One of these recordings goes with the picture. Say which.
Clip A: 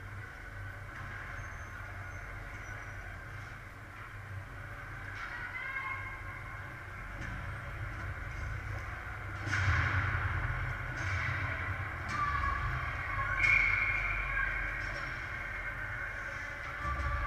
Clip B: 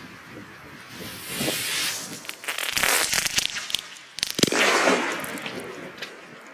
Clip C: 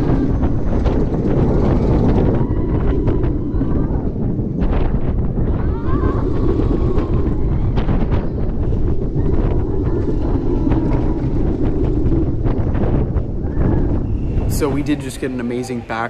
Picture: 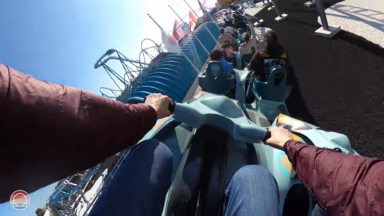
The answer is C